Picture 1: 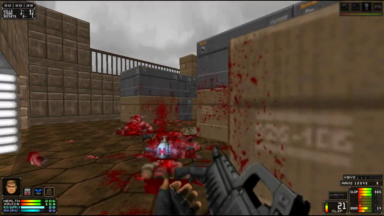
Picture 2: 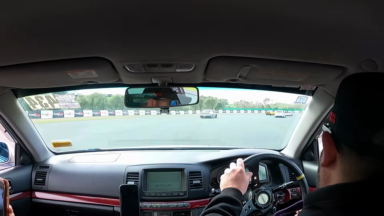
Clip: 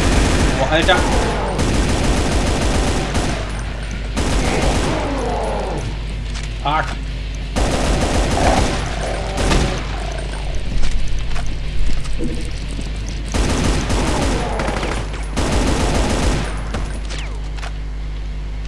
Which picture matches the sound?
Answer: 1